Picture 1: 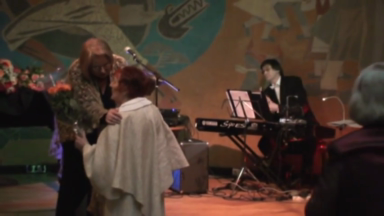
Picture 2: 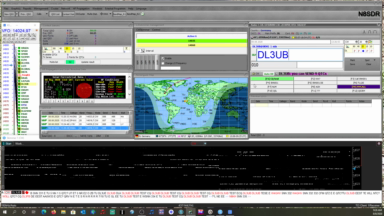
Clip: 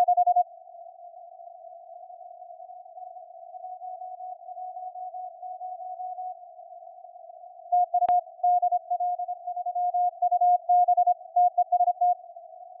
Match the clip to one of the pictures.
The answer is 2